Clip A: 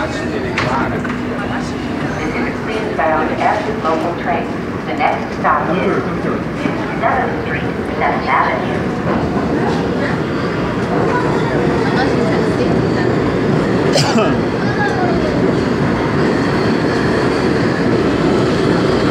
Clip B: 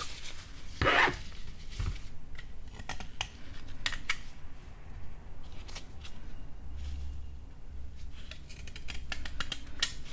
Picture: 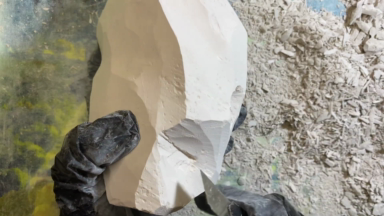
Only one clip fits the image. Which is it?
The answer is B